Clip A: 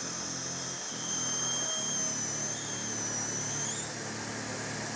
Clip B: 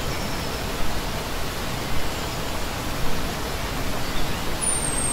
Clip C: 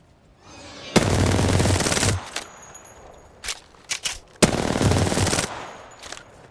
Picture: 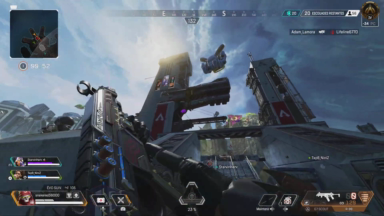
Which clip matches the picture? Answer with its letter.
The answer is C